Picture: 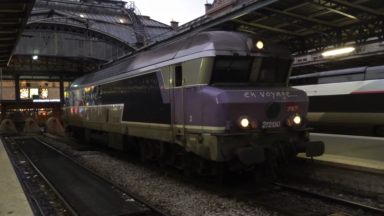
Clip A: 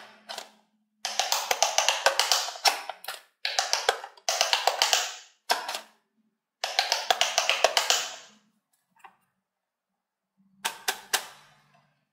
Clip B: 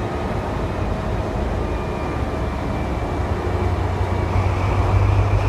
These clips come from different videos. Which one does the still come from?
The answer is B